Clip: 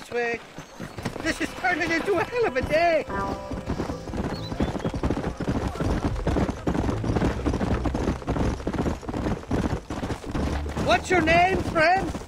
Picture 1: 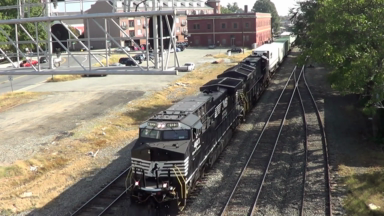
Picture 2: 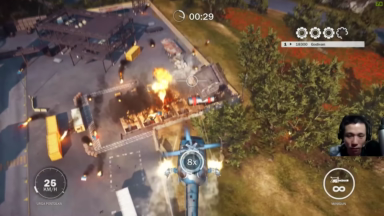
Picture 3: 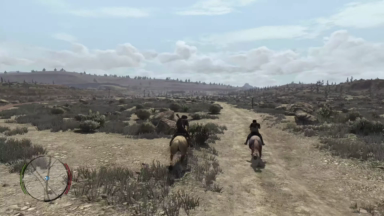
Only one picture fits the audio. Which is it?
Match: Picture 3